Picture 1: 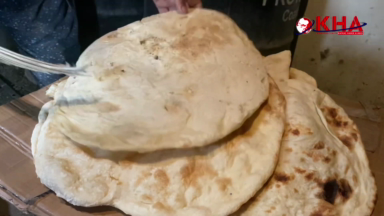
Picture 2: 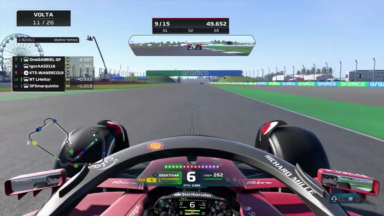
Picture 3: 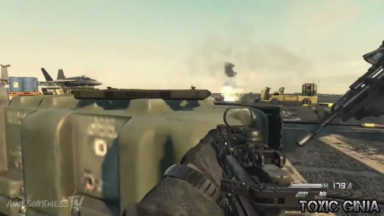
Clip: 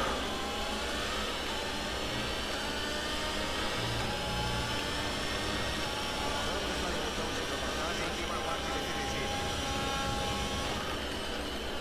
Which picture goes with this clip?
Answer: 2